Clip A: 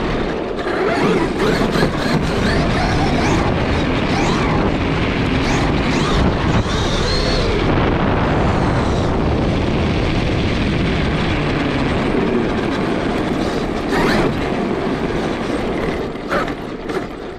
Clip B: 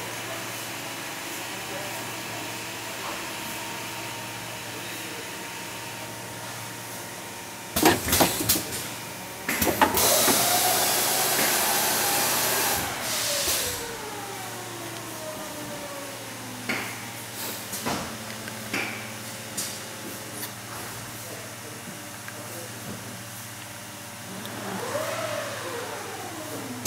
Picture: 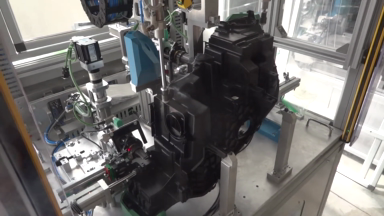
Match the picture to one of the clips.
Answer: B